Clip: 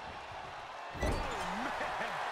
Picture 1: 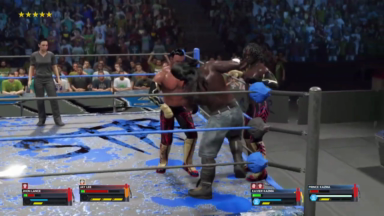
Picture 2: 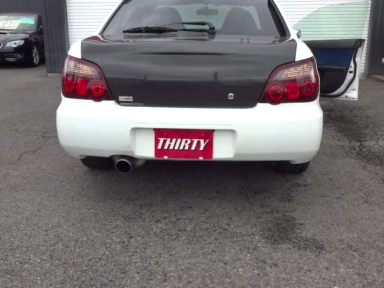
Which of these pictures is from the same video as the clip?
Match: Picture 1